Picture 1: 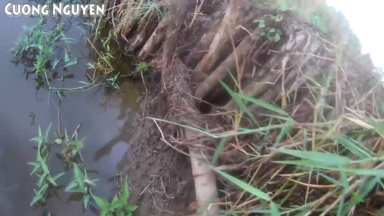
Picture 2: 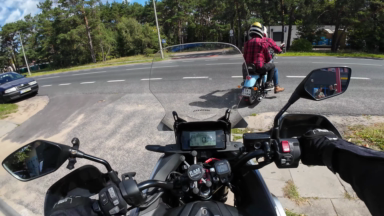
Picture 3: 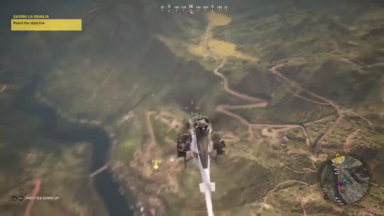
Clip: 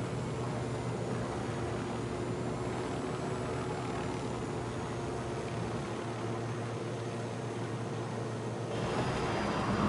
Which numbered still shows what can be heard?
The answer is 3